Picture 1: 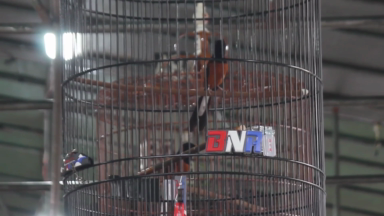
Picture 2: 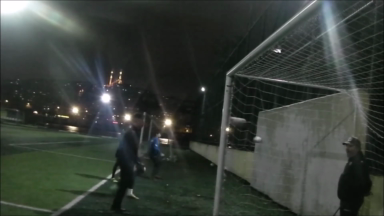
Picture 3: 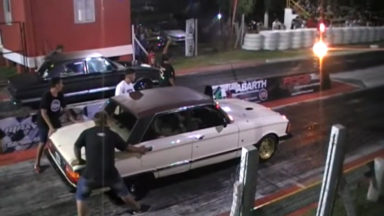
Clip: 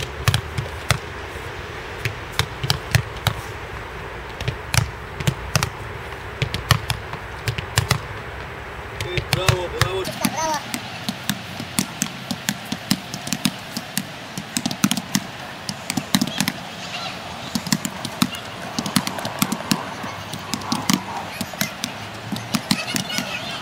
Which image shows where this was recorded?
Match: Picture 2